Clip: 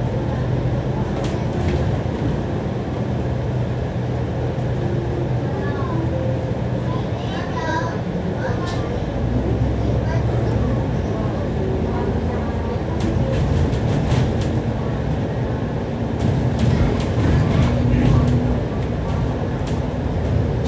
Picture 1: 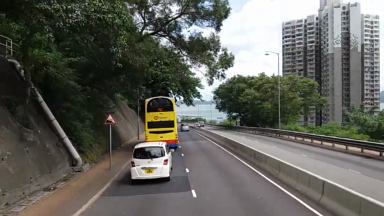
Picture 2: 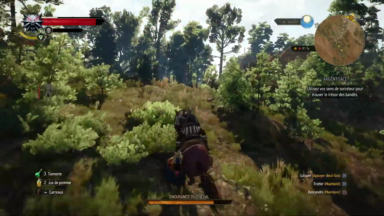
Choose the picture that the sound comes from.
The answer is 1